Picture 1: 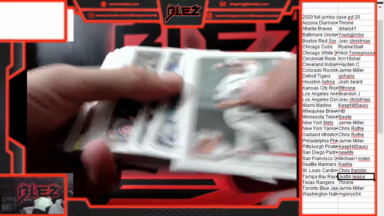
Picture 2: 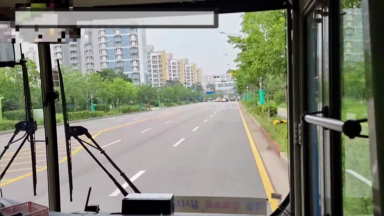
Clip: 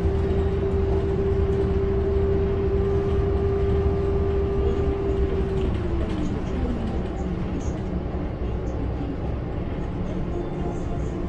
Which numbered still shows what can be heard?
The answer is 2